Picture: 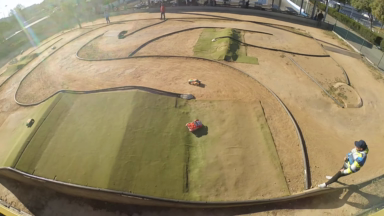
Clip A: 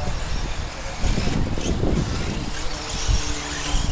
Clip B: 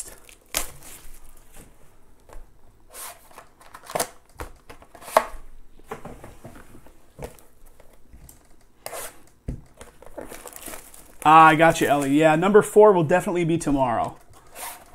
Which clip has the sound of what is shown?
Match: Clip A